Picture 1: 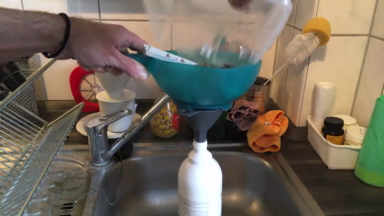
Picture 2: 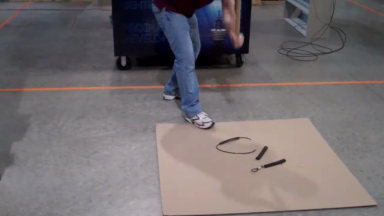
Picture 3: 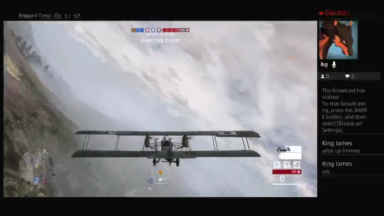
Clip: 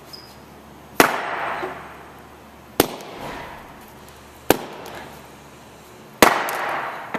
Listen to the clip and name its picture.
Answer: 2